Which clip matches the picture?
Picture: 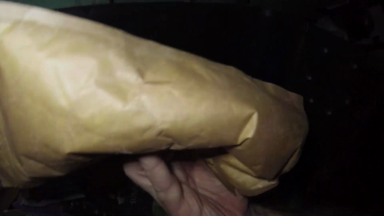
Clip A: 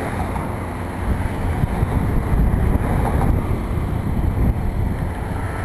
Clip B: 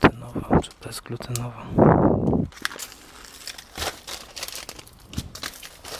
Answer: B